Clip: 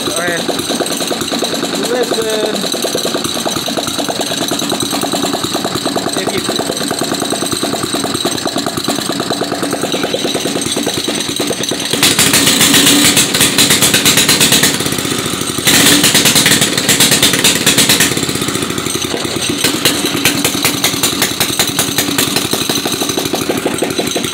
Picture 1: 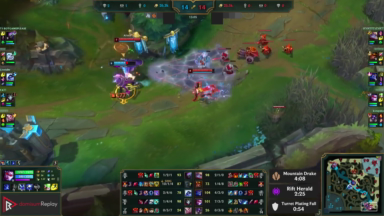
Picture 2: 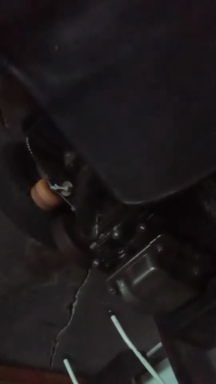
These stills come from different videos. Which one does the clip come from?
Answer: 2